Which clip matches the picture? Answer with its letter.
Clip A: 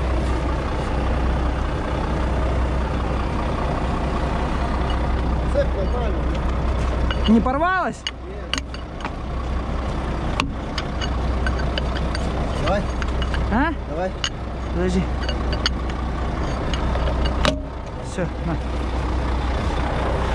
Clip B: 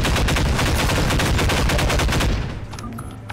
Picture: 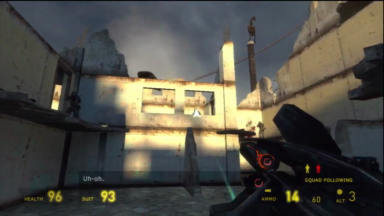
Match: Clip B